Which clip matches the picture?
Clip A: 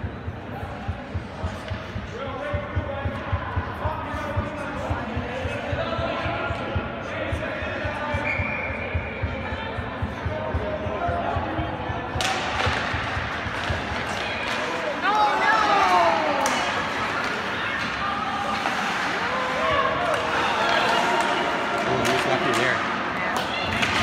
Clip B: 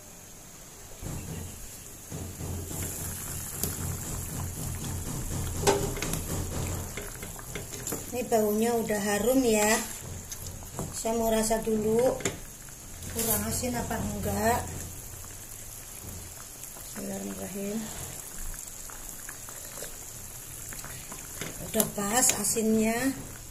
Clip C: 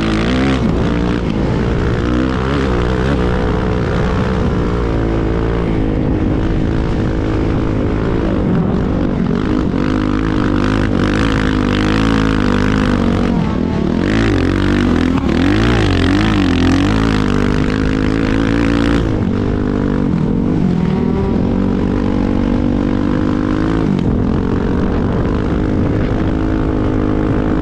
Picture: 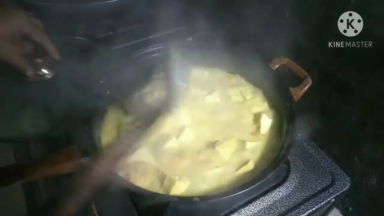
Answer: B